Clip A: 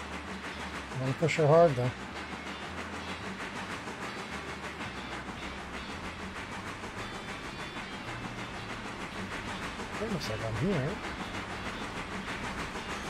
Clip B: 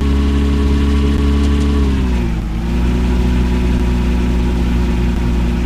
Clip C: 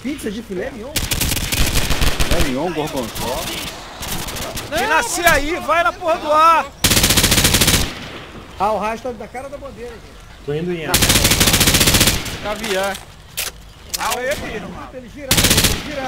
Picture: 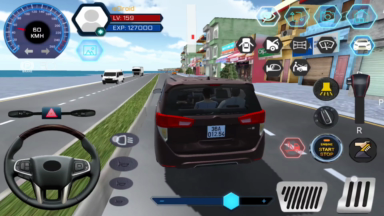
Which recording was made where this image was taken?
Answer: B